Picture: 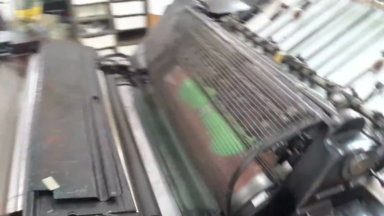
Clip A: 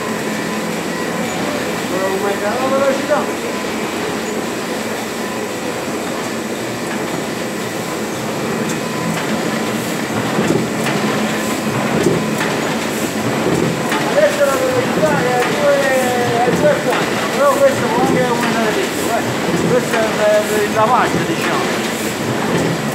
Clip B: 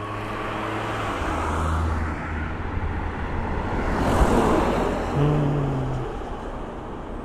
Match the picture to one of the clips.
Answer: A